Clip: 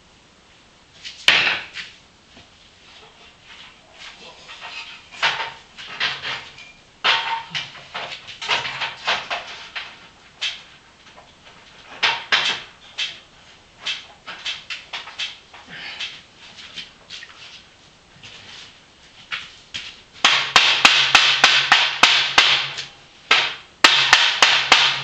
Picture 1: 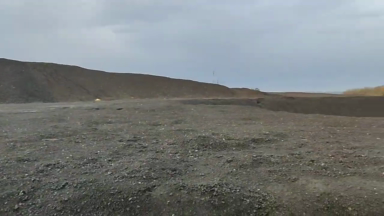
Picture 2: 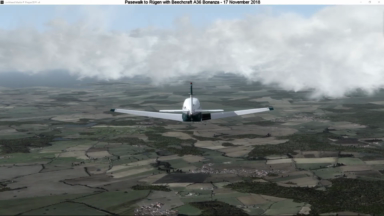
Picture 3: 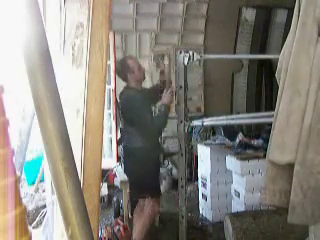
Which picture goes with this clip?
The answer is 3